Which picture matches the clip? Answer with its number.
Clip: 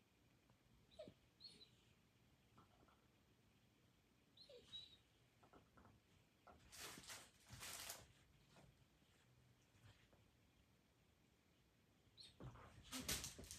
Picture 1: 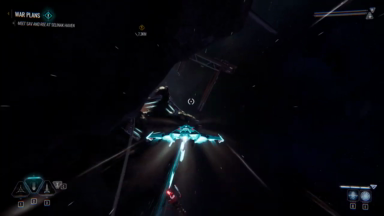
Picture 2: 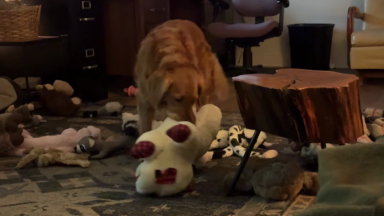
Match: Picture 2